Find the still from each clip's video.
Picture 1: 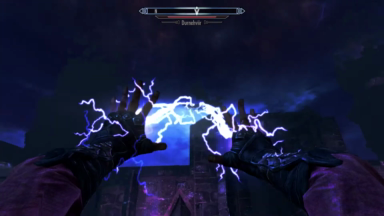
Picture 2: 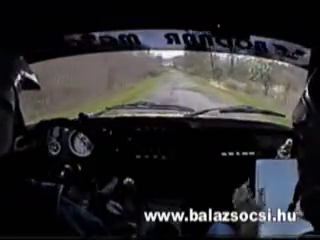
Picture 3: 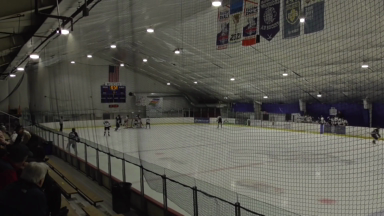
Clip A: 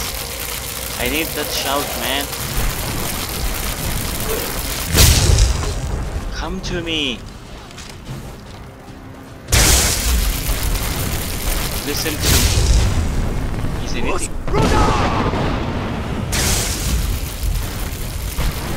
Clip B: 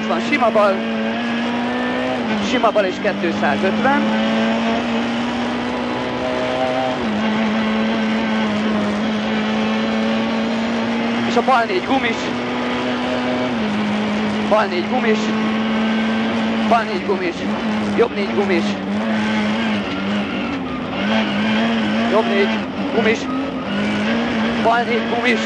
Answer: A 1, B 2